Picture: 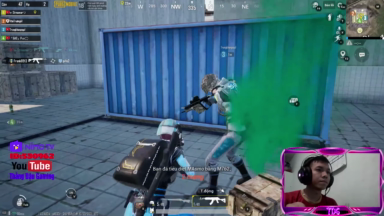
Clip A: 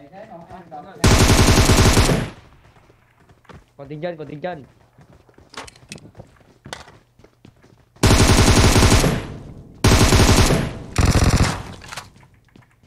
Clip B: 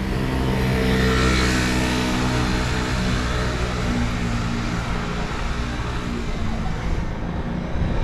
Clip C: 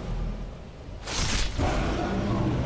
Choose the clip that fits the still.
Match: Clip A